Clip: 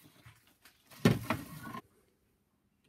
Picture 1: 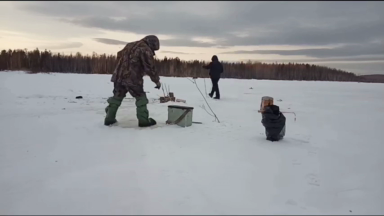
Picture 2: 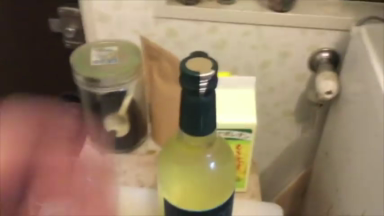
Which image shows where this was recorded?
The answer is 2